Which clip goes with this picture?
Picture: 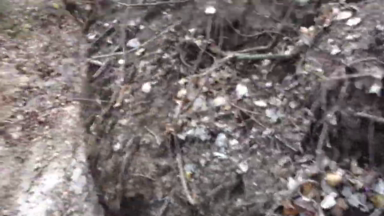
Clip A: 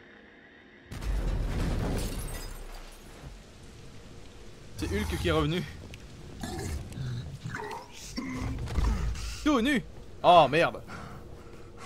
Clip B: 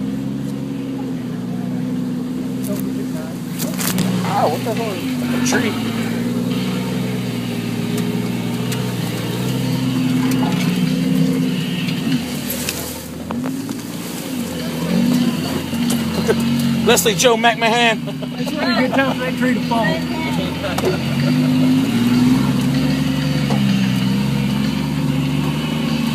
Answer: B